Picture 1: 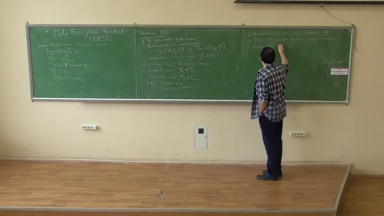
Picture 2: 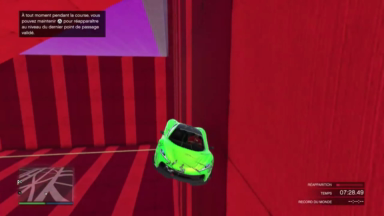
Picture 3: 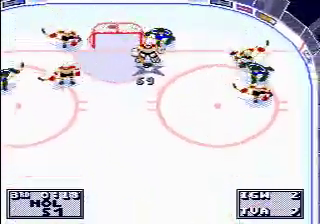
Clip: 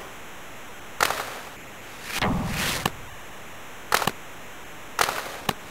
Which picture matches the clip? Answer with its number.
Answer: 3